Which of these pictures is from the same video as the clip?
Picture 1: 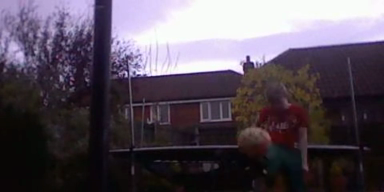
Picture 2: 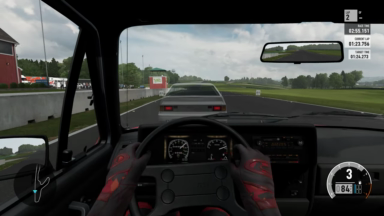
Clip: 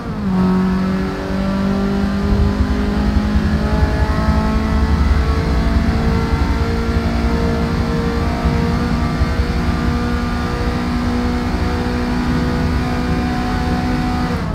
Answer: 2